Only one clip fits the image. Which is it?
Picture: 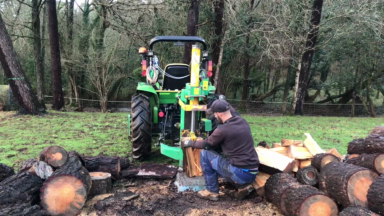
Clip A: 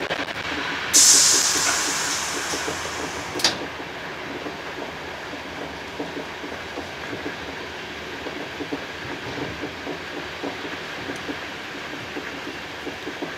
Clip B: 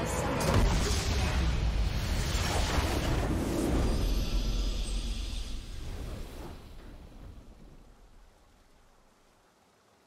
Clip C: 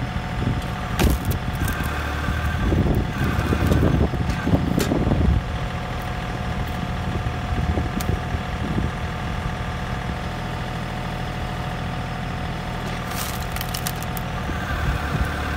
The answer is C